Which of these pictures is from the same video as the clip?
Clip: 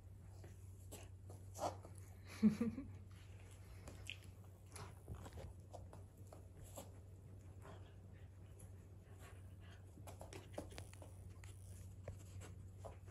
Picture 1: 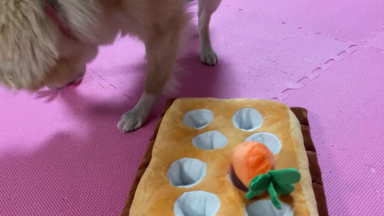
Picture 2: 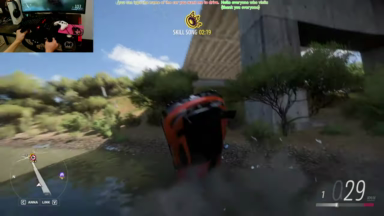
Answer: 1